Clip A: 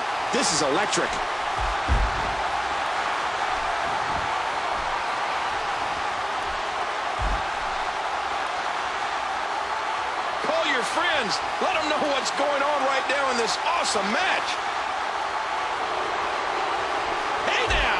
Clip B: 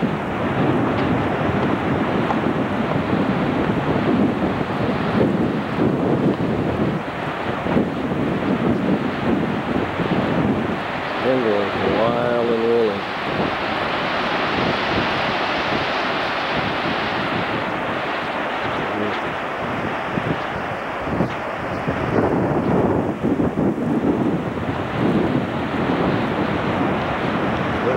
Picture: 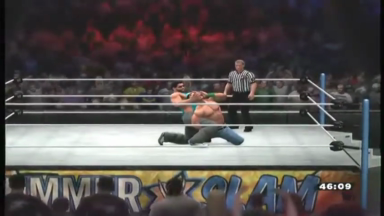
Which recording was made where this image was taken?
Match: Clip A